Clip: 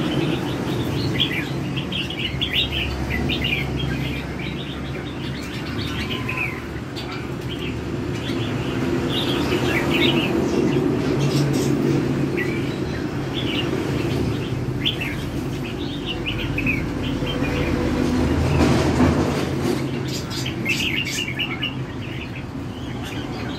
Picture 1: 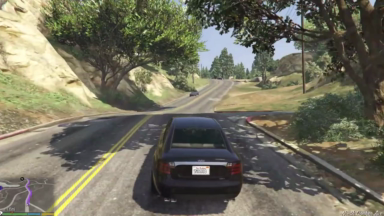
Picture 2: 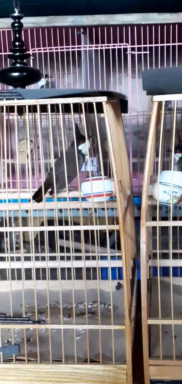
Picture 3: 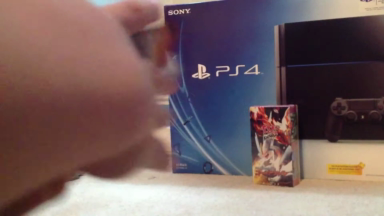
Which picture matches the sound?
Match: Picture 2